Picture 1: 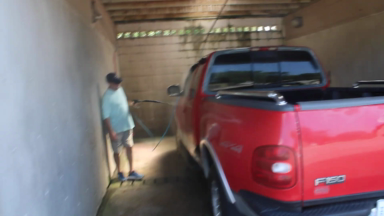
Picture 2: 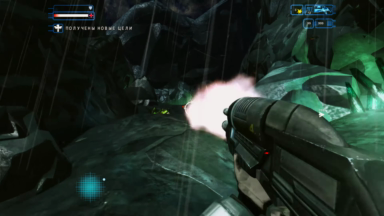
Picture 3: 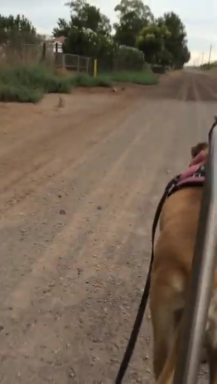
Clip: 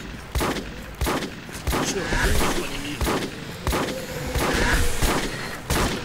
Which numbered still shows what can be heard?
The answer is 2